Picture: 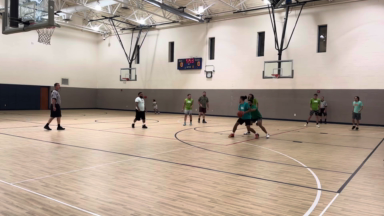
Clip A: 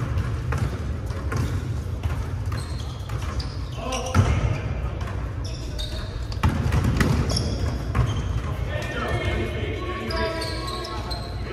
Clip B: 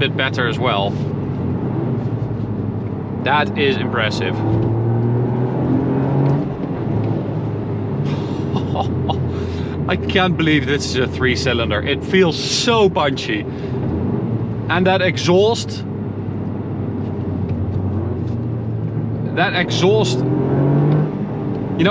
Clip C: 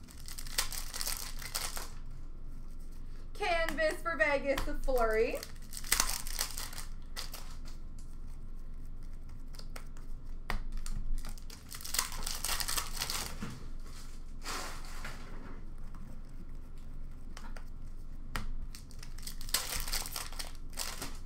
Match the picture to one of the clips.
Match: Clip A